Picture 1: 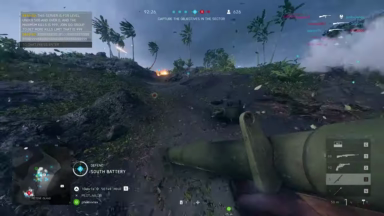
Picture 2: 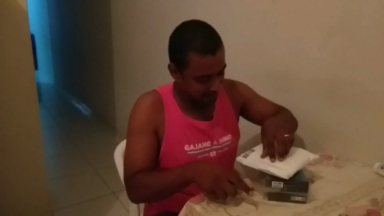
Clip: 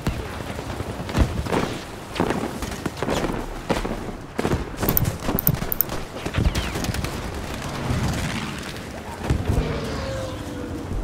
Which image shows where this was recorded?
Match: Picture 1